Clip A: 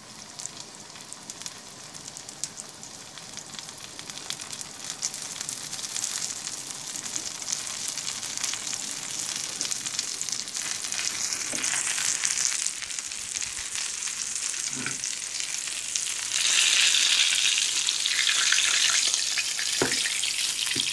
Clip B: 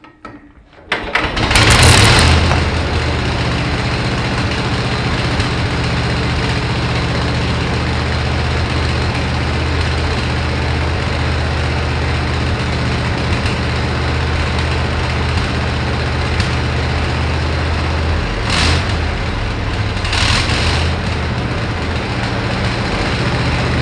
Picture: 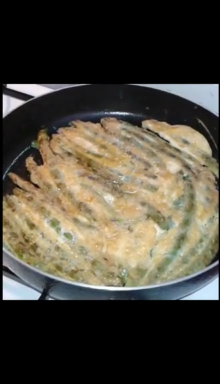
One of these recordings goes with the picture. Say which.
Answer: A